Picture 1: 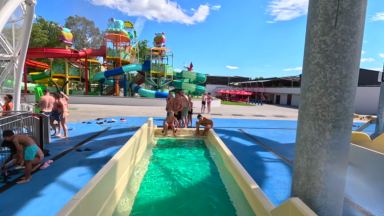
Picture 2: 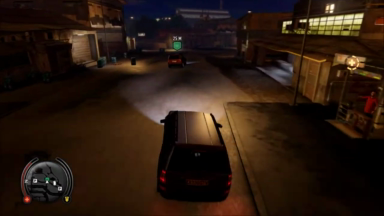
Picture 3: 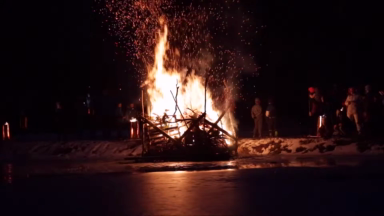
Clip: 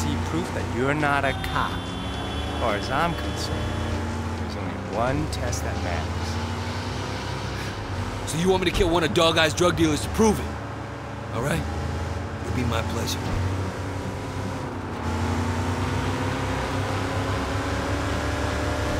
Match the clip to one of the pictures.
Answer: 2